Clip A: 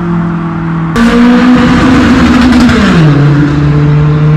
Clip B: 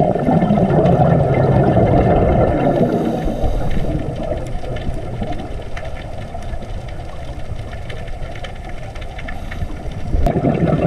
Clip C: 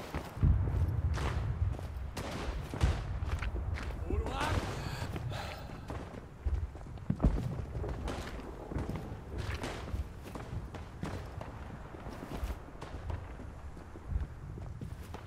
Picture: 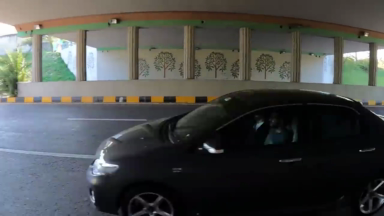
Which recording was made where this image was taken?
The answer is A